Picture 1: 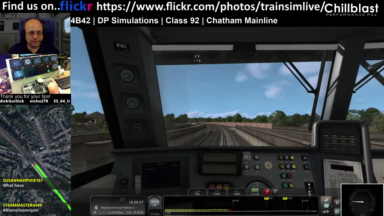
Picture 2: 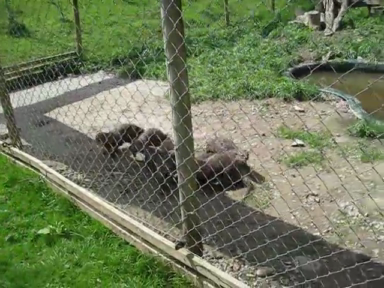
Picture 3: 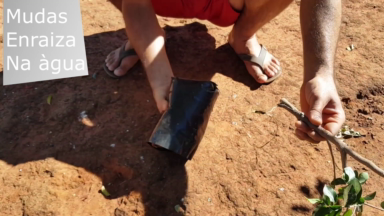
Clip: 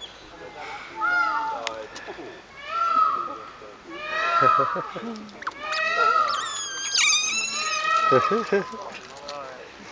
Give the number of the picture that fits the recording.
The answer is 2